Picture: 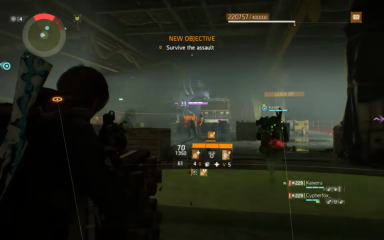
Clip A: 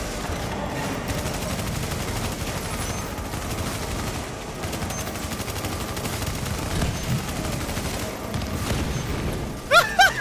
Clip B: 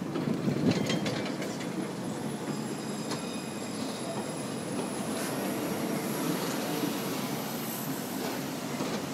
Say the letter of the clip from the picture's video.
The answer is A